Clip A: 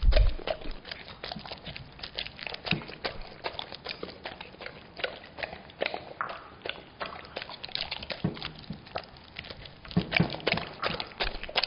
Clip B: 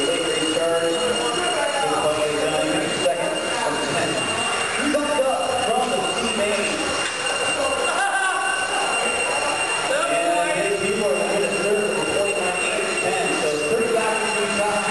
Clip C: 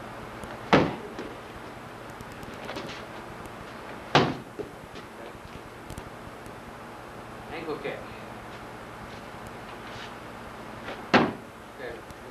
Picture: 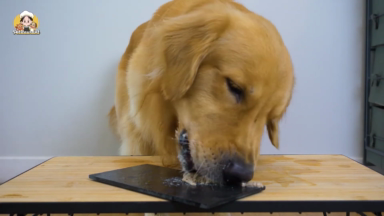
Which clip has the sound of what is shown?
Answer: A